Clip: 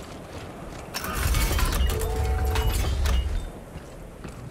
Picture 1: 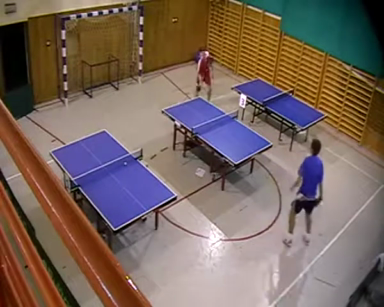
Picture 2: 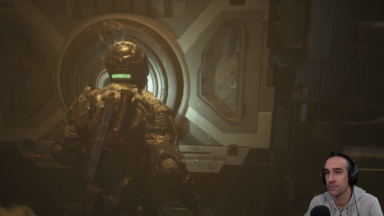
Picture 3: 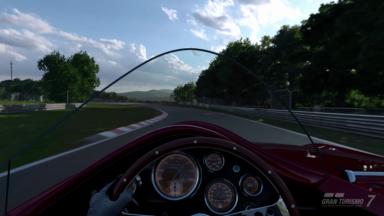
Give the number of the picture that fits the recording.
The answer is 2